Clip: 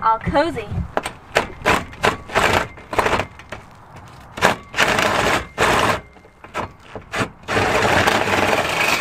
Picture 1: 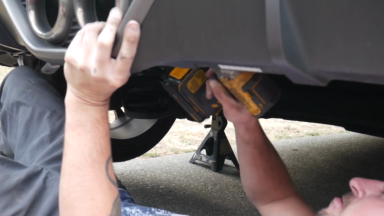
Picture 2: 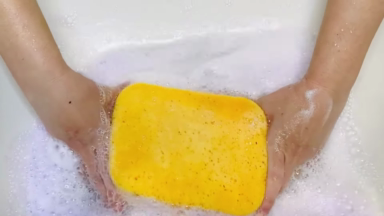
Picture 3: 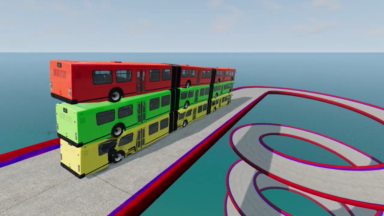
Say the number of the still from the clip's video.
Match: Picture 1